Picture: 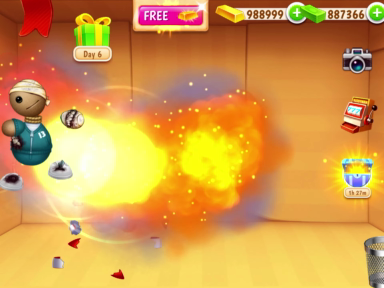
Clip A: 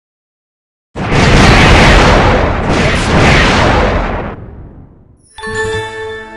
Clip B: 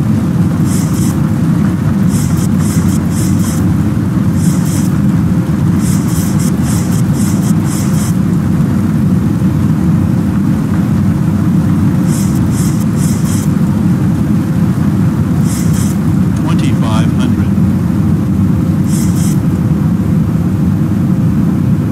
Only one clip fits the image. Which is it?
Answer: A